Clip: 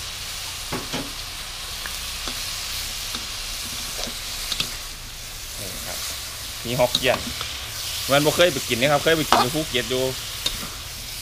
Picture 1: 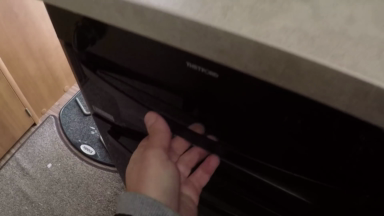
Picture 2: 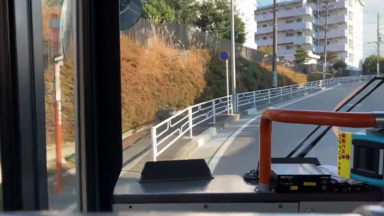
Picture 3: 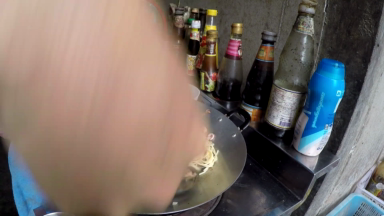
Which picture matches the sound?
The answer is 3